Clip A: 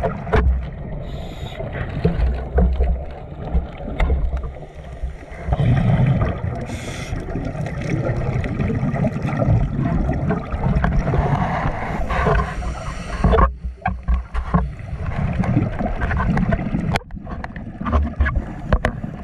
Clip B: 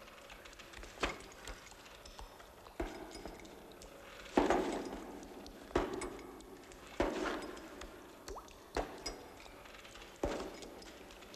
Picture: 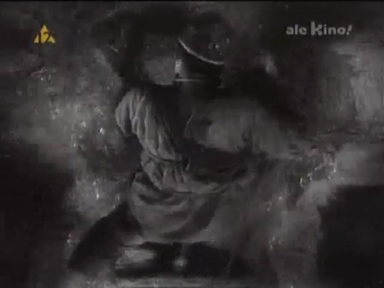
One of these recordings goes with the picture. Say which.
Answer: B